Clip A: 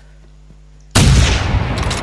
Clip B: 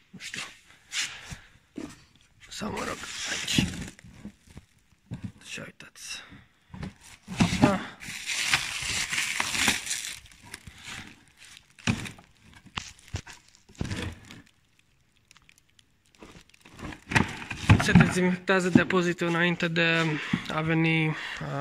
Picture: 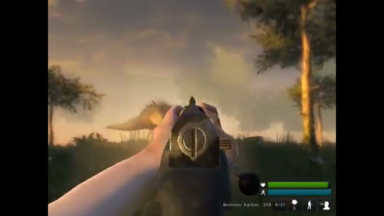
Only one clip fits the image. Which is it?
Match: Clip A